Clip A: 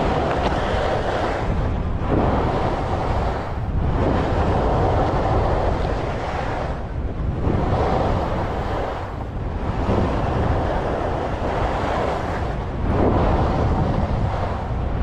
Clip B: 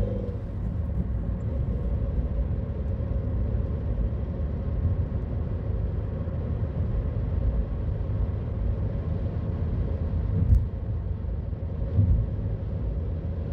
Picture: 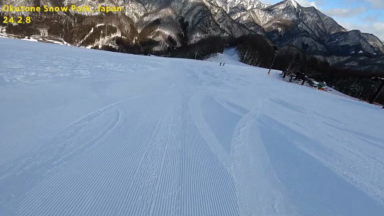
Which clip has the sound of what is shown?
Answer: A